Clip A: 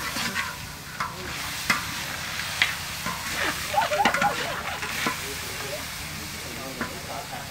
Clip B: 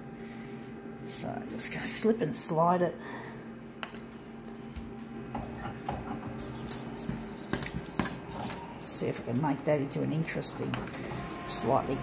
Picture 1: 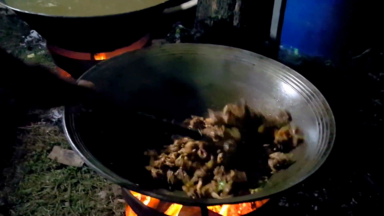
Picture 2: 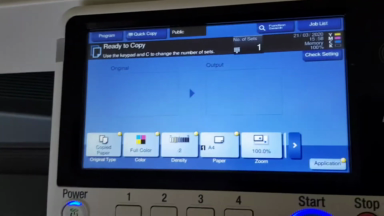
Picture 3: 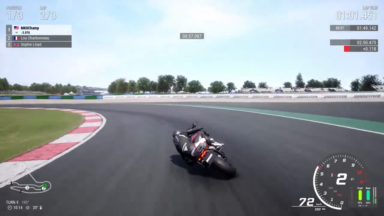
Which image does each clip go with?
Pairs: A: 1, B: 2